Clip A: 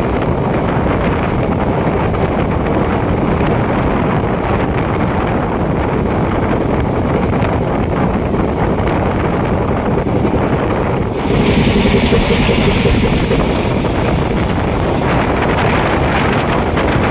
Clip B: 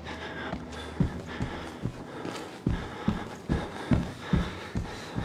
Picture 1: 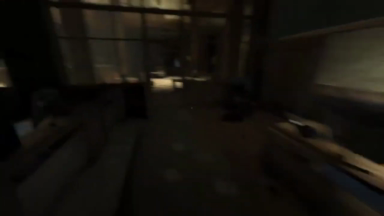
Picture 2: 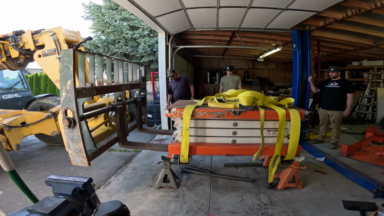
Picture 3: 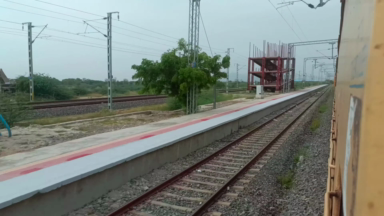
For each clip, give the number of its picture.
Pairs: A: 3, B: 1